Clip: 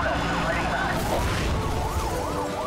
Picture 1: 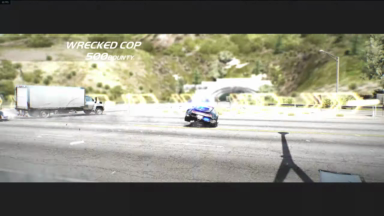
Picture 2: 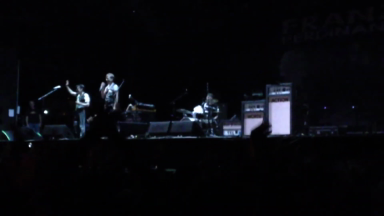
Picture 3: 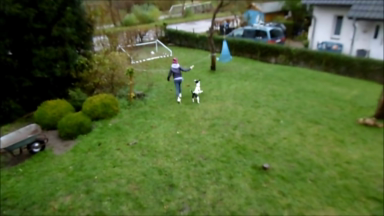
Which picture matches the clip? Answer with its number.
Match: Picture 1